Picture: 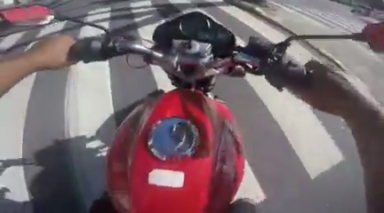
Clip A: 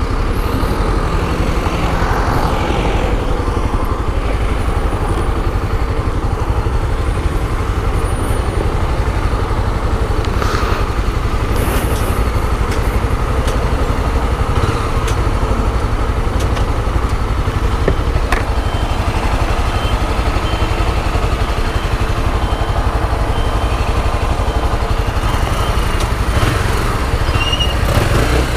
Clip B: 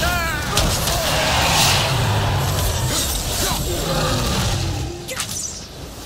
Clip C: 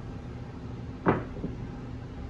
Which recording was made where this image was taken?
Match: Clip A